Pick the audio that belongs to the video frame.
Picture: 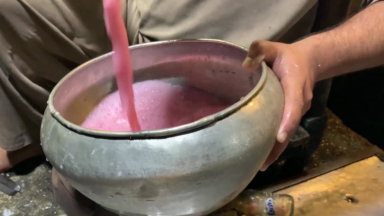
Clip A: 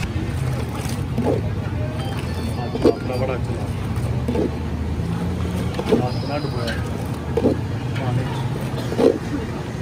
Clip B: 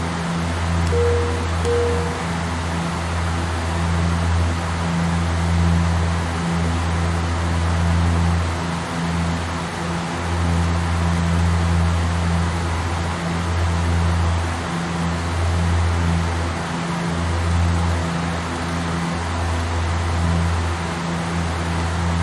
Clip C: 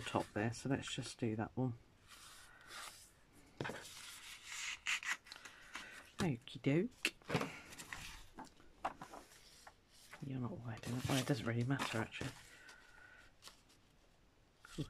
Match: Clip A